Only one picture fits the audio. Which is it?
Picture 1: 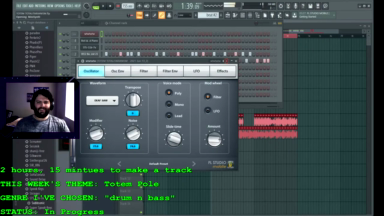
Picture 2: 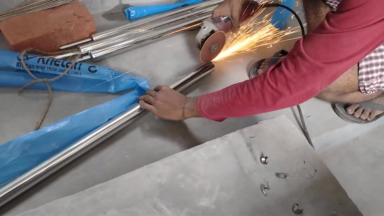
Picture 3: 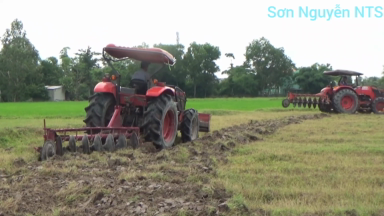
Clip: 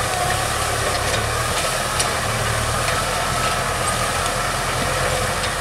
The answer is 3